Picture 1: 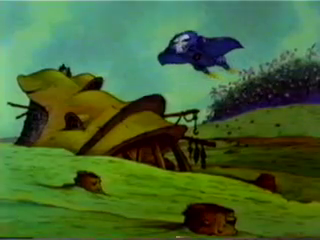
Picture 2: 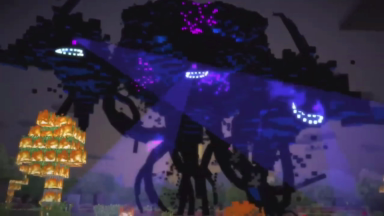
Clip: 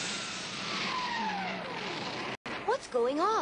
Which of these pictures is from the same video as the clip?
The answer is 1